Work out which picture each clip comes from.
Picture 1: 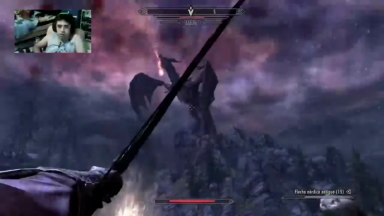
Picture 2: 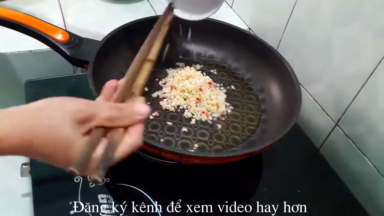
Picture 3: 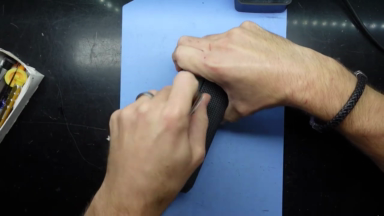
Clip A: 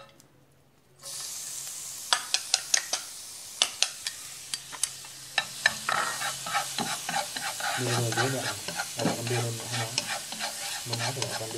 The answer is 2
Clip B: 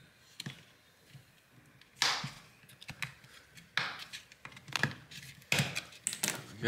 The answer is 3